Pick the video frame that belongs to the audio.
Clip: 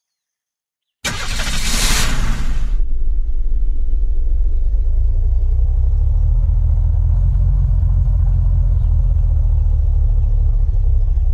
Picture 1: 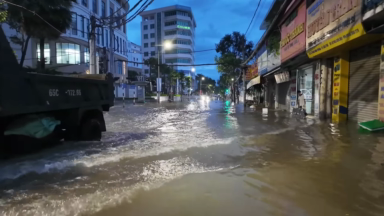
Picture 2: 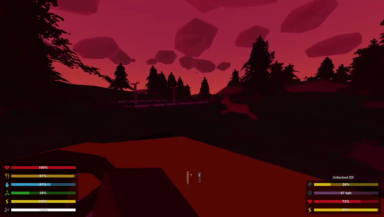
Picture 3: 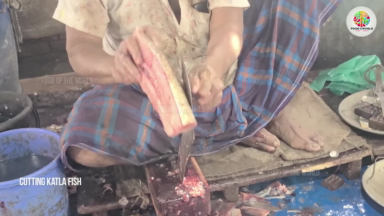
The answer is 2